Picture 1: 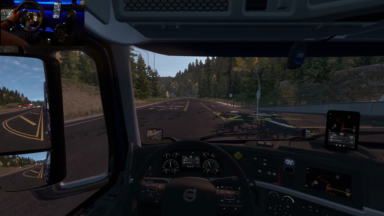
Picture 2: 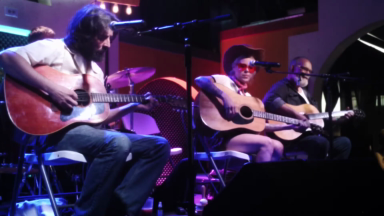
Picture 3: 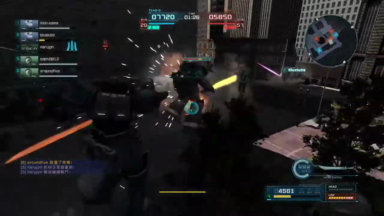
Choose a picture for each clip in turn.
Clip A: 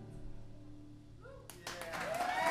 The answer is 2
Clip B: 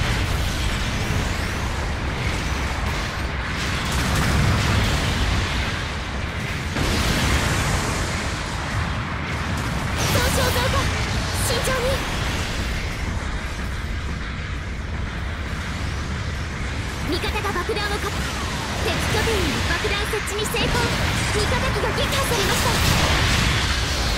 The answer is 3